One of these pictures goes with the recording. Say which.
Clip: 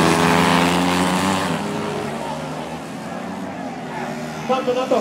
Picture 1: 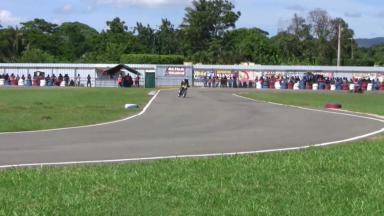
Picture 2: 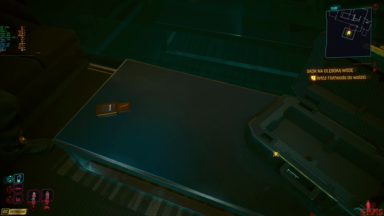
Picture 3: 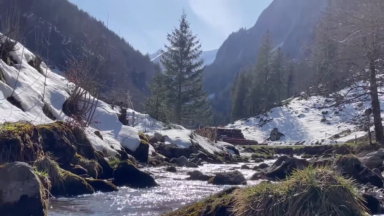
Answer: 1